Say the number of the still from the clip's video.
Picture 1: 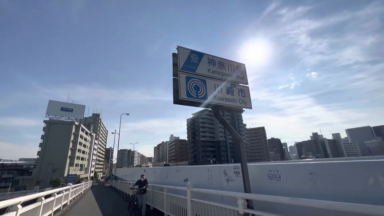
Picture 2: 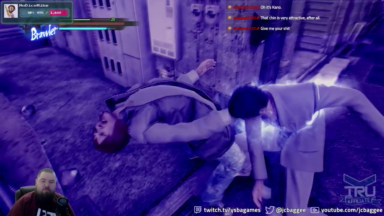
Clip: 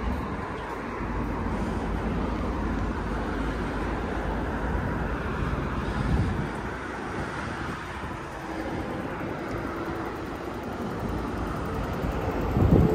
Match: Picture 1